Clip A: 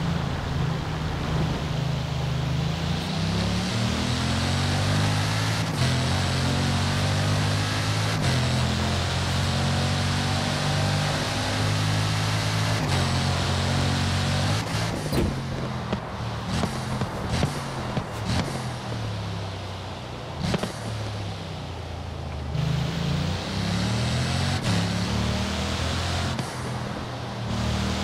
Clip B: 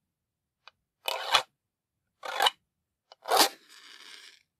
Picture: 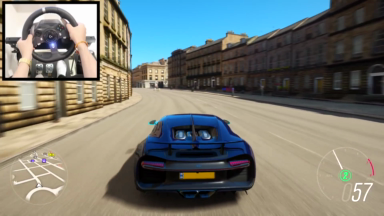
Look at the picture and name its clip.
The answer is A